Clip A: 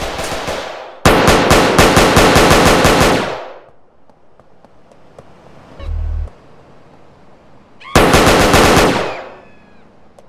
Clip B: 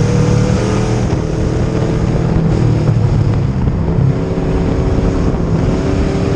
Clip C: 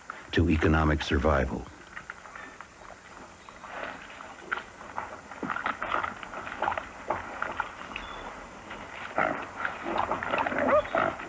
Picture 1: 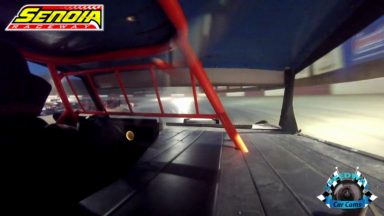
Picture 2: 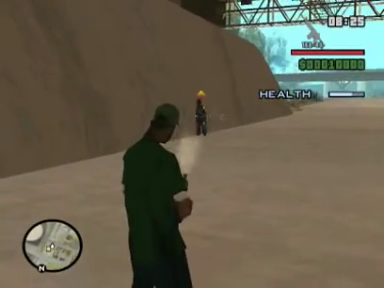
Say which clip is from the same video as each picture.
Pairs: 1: B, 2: A